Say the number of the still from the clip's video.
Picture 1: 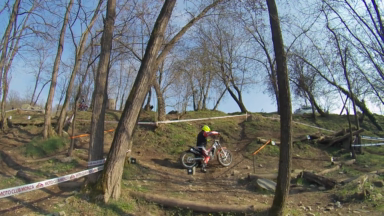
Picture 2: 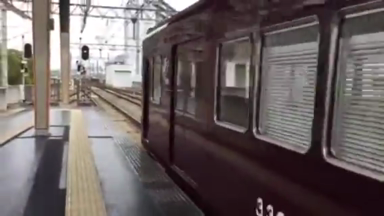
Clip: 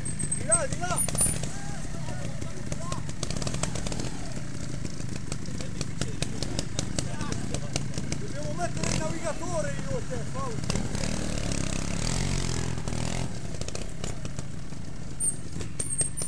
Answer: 1